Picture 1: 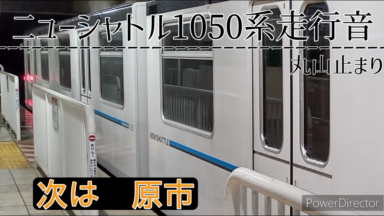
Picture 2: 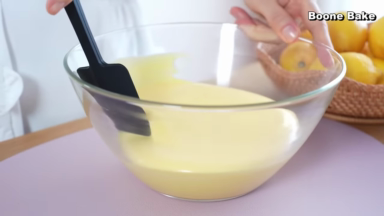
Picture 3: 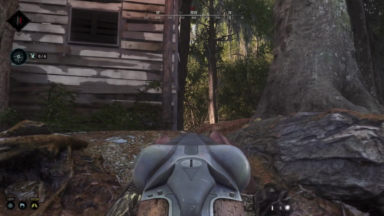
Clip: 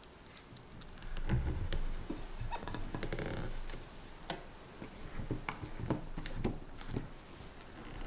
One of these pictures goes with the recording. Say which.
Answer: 2